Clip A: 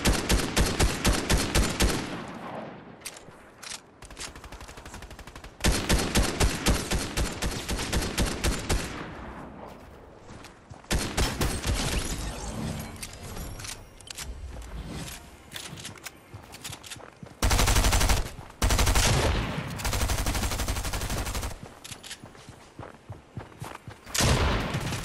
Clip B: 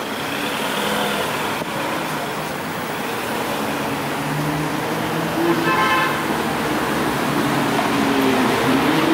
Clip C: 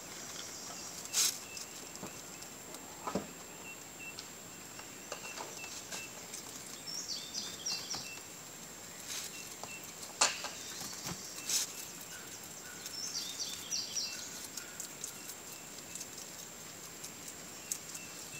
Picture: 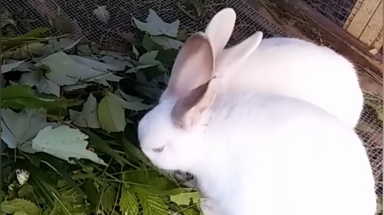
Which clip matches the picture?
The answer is C